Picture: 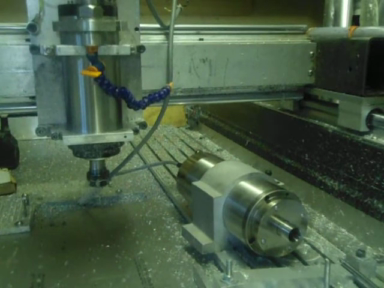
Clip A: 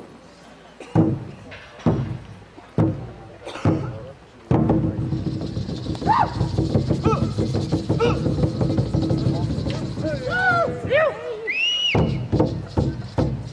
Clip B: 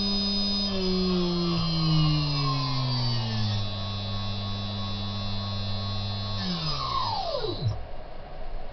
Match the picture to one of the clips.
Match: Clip B